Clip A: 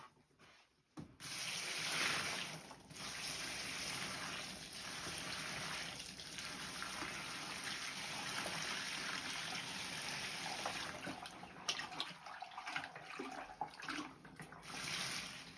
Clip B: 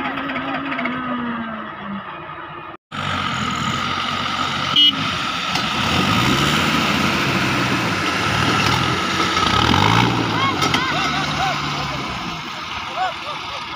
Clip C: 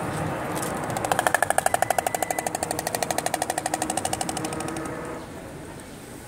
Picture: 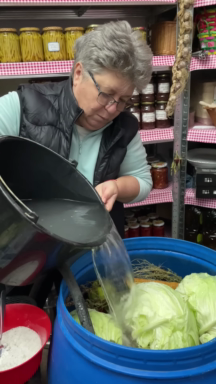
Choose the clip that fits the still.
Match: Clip A